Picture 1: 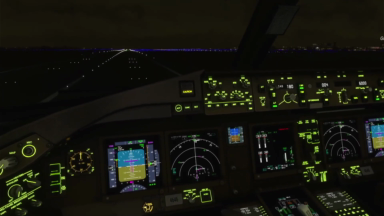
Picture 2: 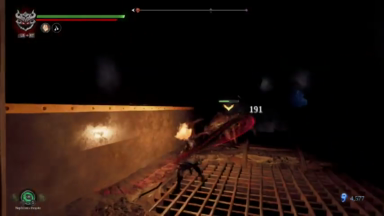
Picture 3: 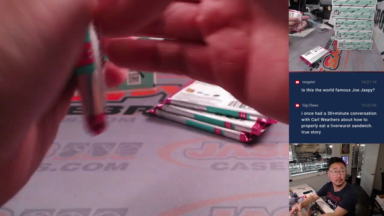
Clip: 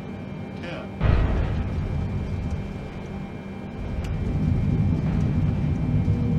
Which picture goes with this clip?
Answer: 1